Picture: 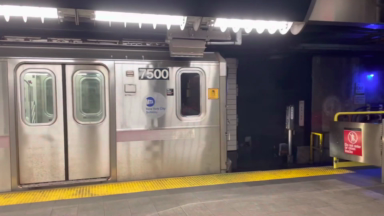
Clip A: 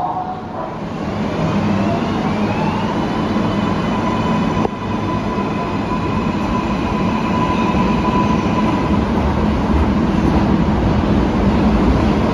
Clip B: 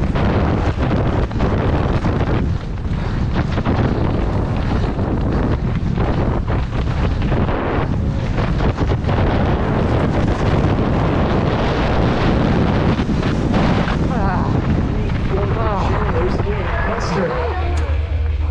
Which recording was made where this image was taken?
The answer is A